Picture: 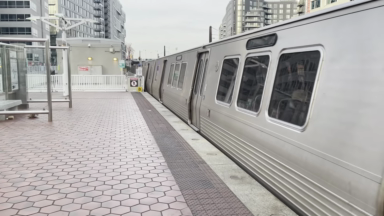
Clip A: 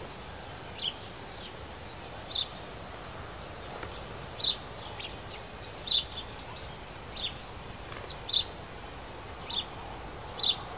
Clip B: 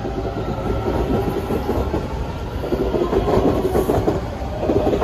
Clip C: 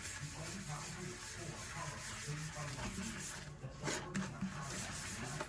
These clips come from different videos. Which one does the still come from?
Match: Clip B